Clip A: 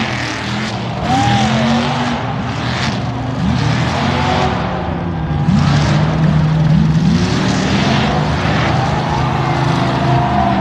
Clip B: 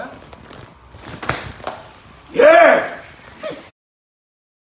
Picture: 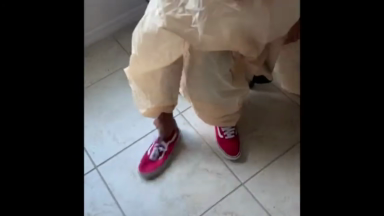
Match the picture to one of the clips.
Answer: B